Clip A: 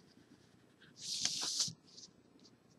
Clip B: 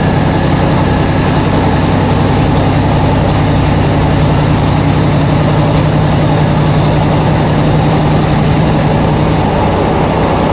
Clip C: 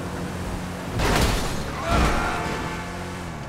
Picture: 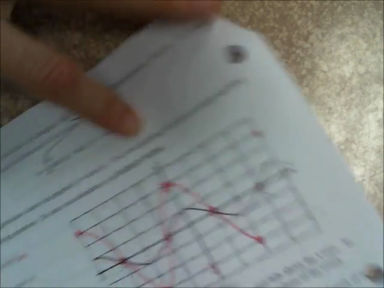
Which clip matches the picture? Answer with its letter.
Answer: A